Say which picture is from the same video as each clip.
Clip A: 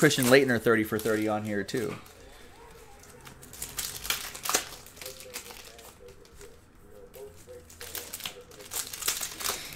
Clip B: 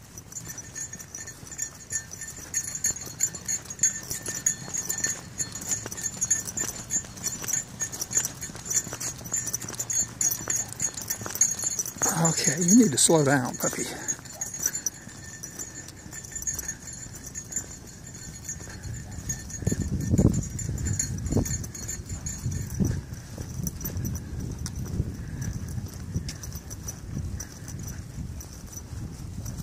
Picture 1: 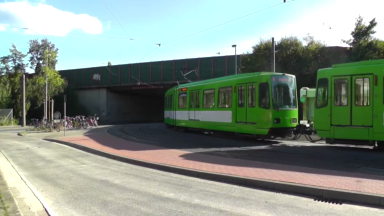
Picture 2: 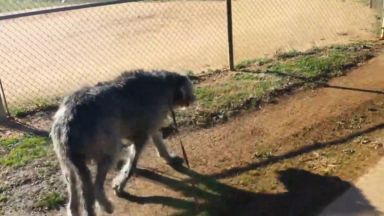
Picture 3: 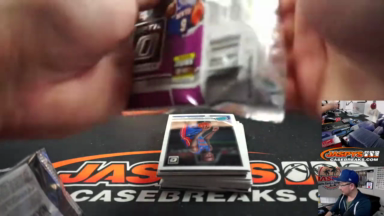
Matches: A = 3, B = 2